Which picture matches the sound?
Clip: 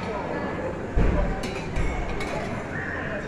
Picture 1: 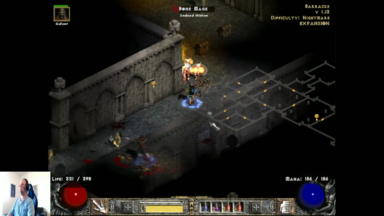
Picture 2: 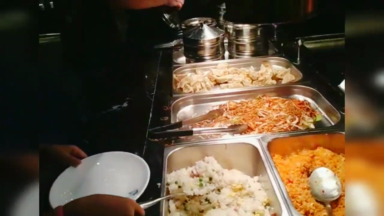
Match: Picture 2